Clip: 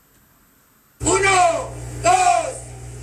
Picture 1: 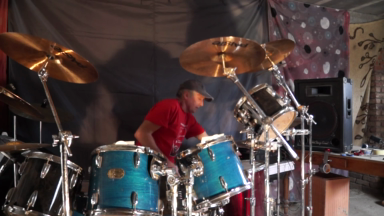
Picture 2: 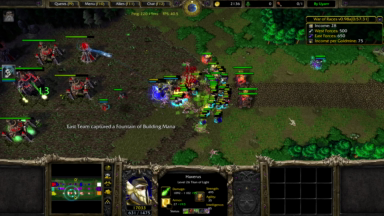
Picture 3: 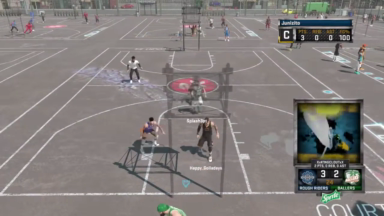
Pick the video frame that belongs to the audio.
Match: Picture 1